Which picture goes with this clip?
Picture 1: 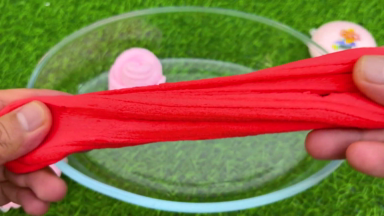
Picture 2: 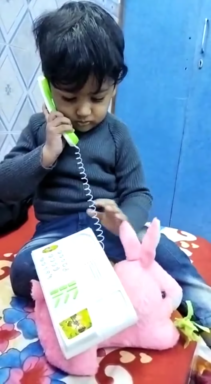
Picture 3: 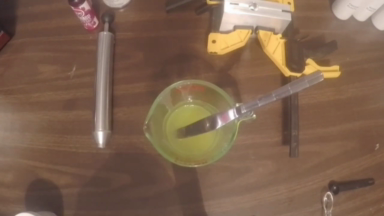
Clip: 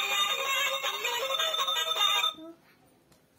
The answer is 2